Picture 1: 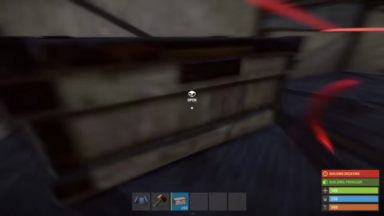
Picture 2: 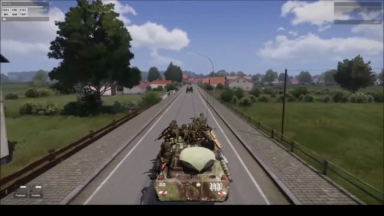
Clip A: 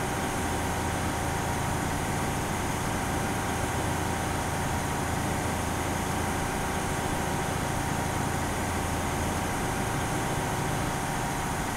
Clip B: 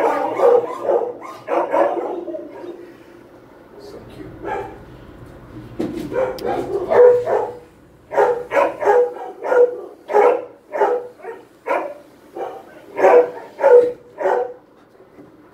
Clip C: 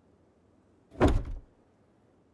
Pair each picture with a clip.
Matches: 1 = C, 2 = A